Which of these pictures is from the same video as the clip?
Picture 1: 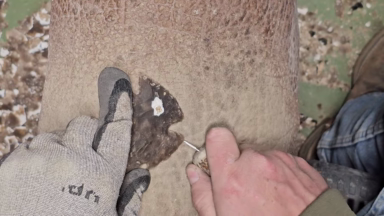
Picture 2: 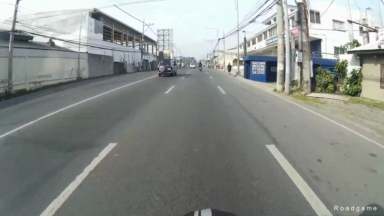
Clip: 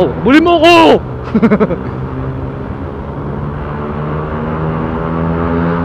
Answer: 2